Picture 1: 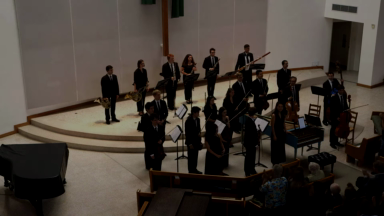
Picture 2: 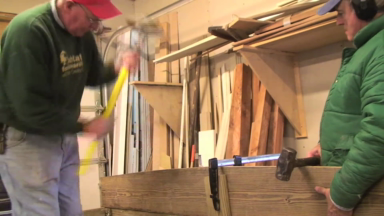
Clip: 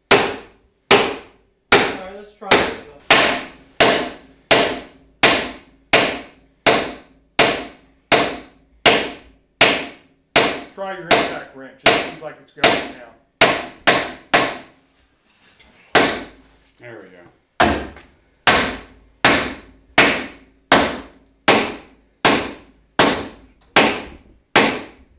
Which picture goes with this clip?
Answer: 2